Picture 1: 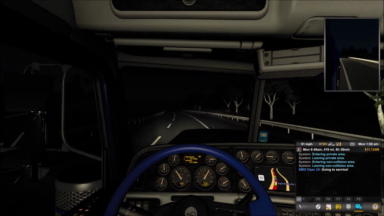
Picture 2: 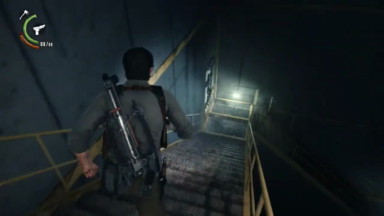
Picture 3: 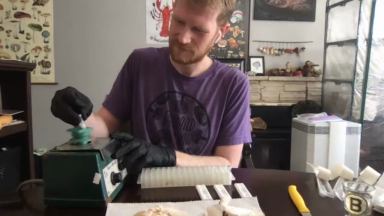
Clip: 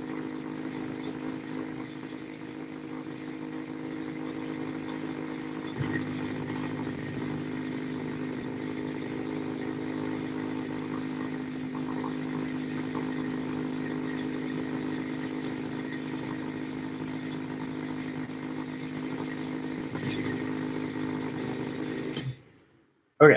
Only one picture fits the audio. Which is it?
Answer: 3